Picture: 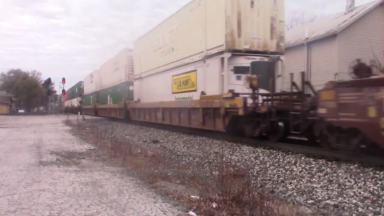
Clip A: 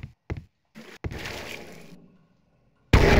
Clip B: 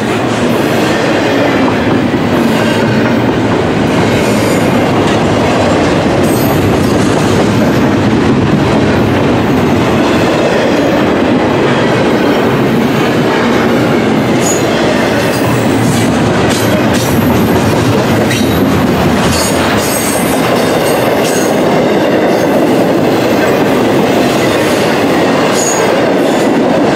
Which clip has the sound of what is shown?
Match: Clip B